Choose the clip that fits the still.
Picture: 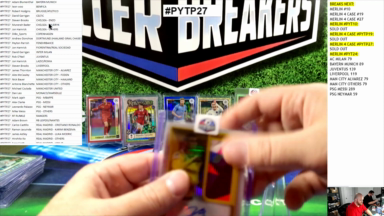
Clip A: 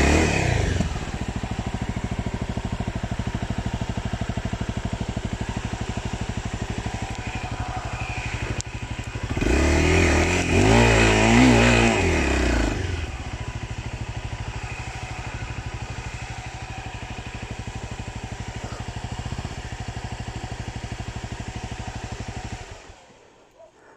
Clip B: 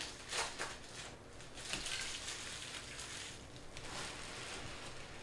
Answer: B